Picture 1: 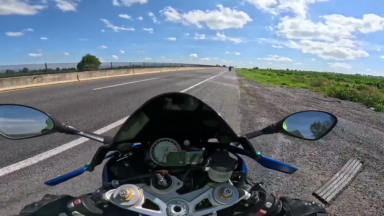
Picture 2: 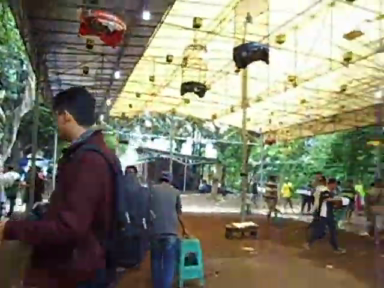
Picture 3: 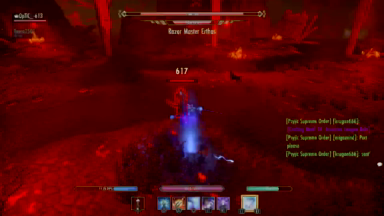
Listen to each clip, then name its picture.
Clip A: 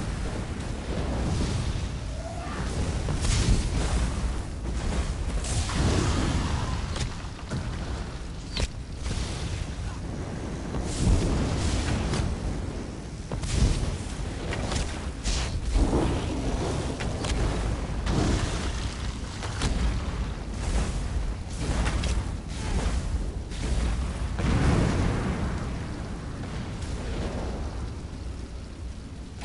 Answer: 3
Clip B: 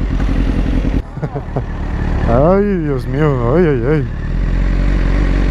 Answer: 1